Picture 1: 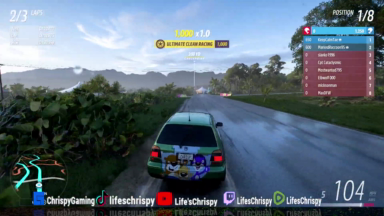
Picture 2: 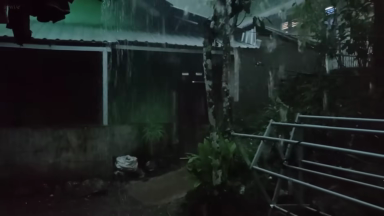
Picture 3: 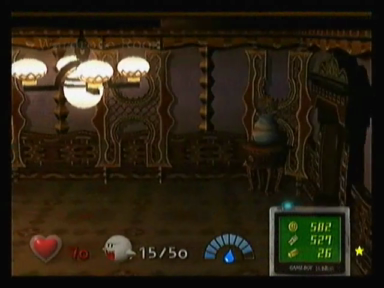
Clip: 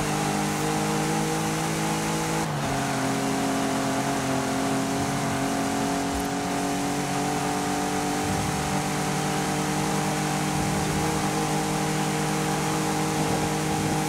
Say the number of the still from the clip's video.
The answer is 1